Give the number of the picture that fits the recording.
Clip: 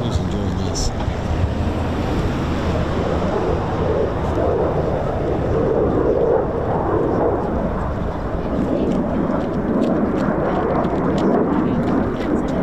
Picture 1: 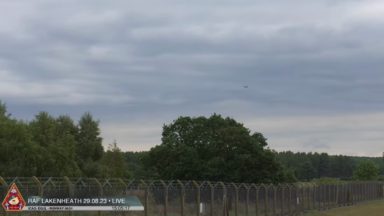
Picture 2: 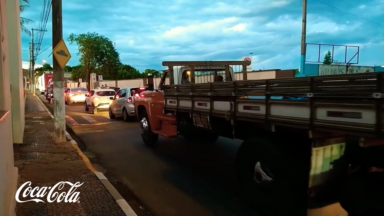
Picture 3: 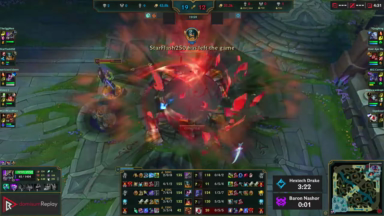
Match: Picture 1